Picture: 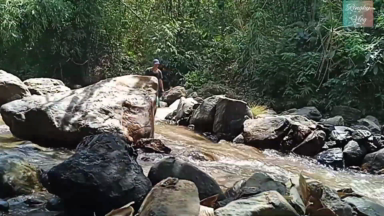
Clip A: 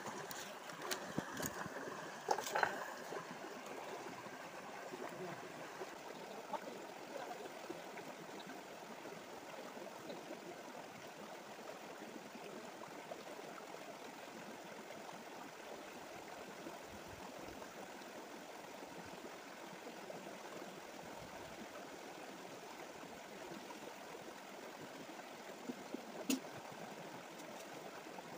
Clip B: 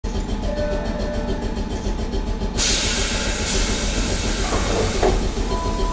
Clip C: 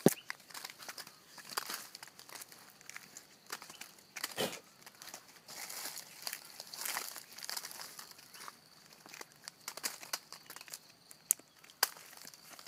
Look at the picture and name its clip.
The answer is A